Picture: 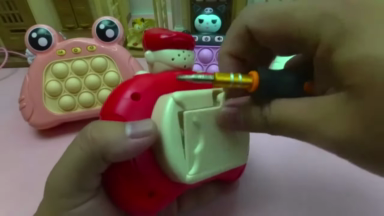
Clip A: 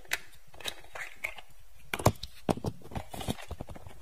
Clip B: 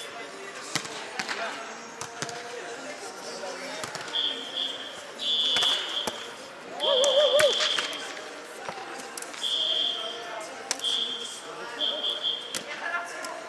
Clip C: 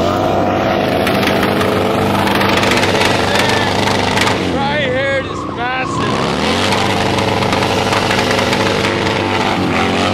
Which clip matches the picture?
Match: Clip A